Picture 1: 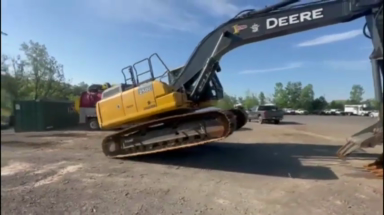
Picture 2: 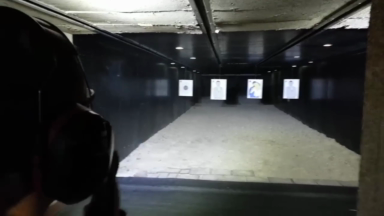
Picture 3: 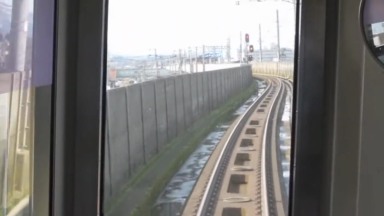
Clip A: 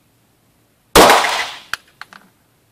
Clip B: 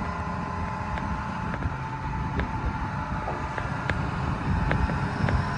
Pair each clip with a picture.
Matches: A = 2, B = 1